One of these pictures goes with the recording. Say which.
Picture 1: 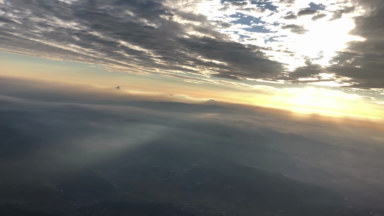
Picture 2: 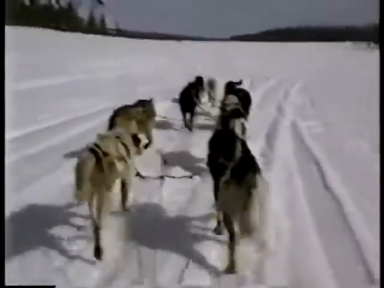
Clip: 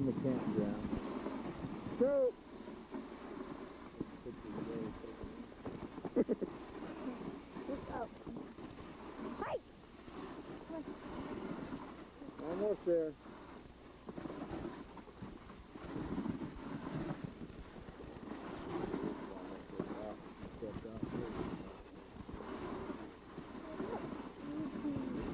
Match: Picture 2